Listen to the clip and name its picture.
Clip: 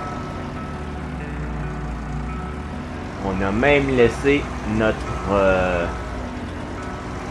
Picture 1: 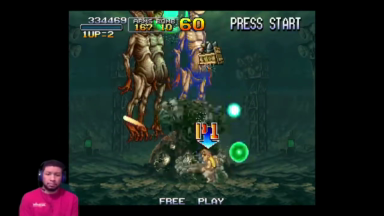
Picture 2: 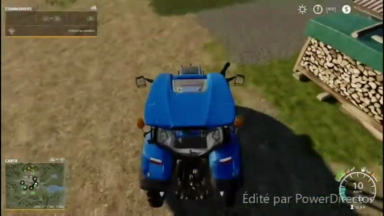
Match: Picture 2